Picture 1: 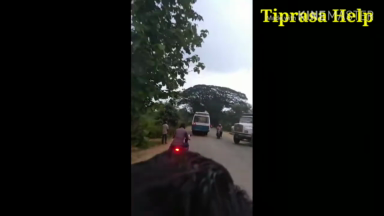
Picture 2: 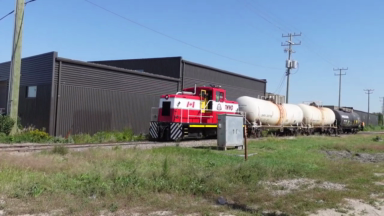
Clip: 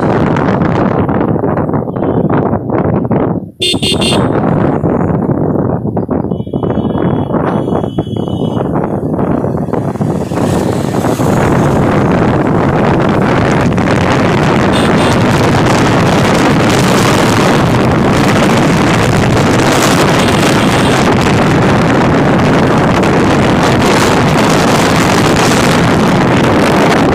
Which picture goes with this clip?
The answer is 1